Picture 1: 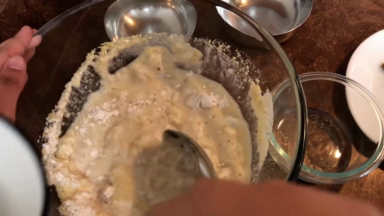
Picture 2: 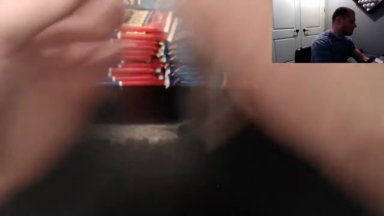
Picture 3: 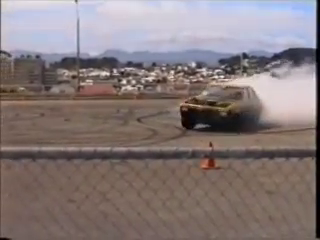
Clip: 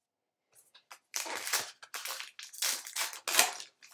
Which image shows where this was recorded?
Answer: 2